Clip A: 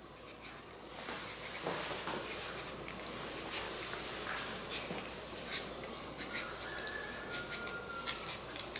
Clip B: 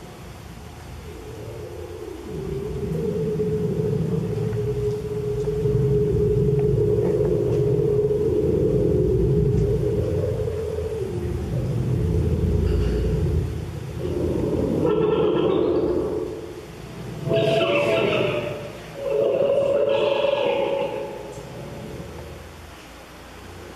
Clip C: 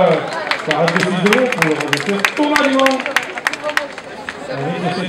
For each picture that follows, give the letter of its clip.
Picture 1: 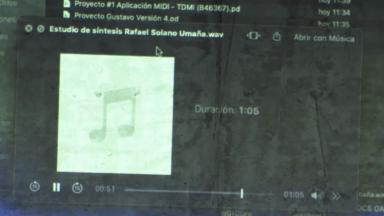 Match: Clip B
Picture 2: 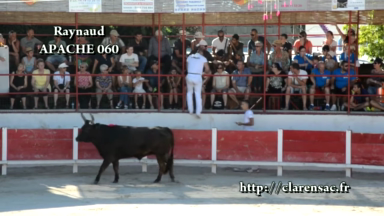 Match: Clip C